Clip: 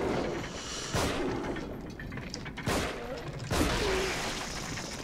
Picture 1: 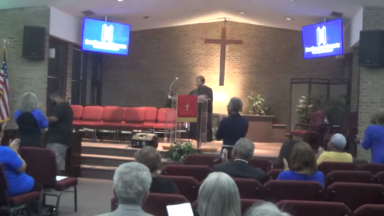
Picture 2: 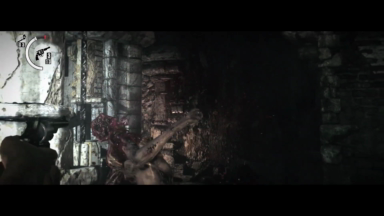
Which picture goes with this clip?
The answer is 2